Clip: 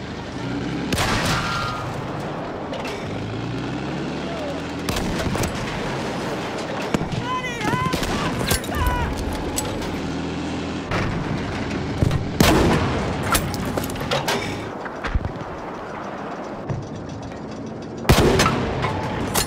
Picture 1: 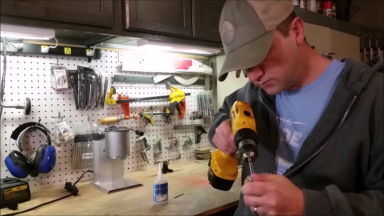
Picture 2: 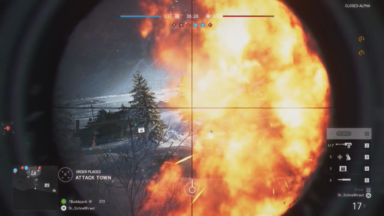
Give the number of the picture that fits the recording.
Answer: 2